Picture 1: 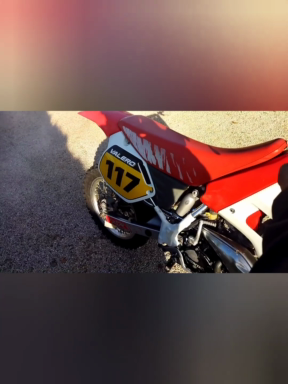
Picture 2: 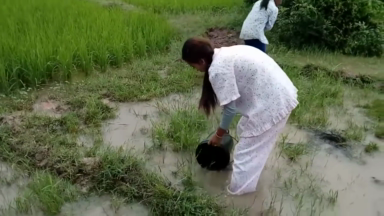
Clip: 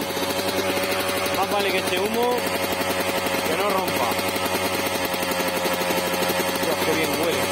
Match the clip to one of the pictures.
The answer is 1